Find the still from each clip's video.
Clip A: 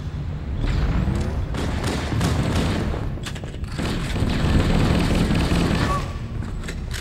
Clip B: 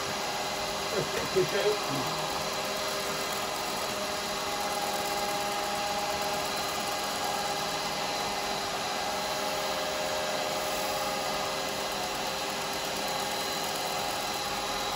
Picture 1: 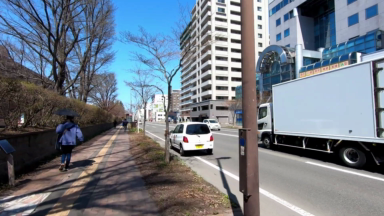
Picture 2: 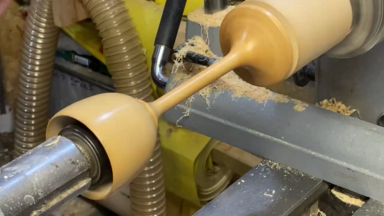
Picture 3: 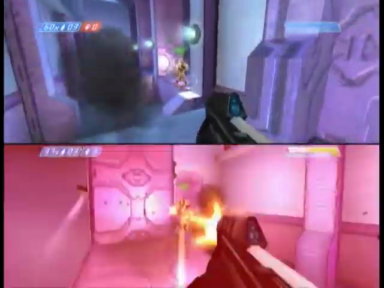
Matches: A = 3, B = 2